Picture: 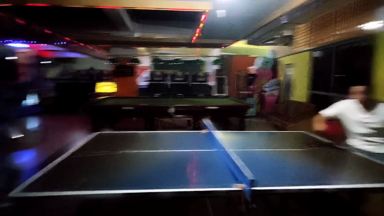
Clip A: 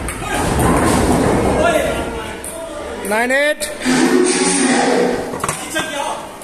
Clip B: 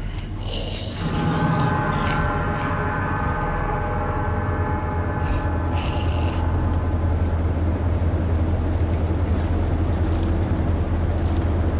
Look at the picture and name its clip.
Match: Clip A